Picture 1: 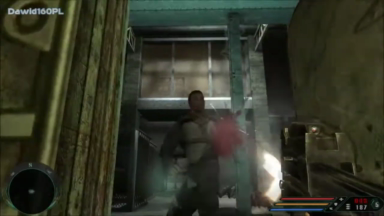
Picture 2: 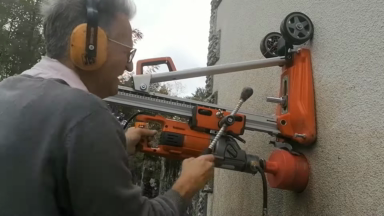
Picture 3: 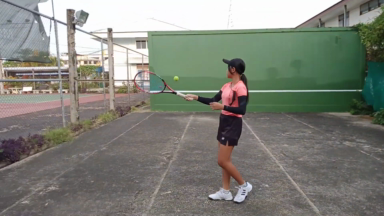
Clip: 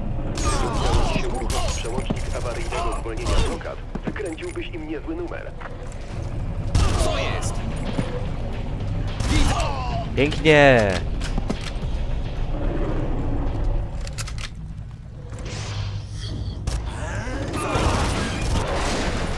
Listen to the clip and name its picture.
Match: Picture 1